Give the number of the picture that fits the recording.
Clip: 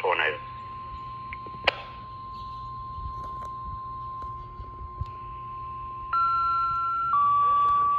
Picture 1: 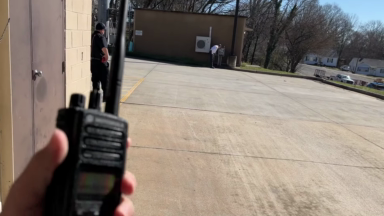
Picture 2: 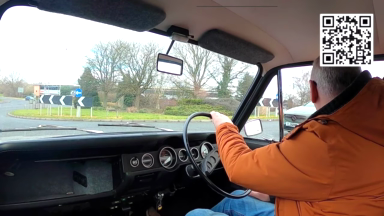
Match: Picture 1